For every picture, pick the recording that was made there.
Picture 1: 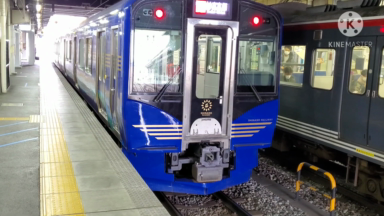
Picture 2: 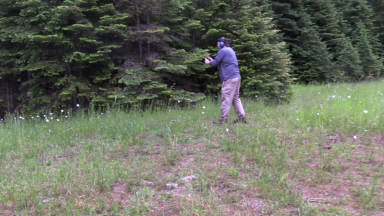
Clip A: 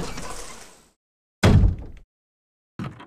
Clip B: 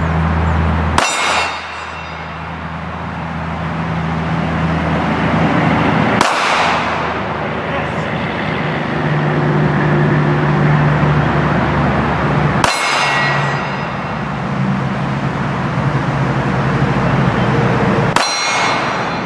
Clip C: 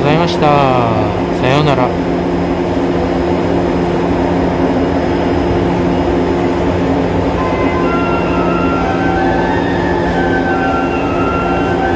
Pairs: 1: C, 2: B